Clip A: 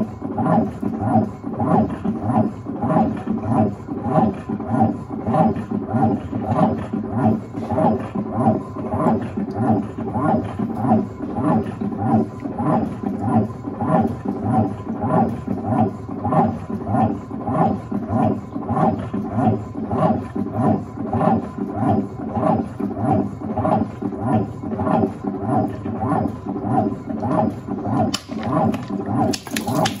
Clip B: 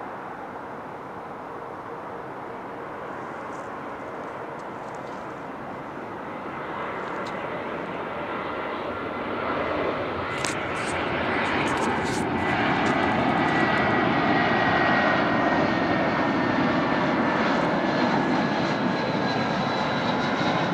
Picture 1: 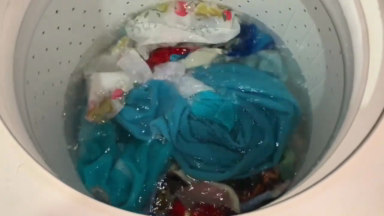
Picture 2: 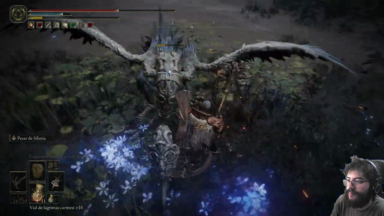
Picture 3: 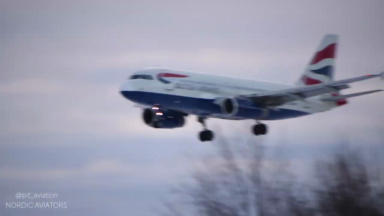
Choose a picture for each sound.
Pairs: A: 1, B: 3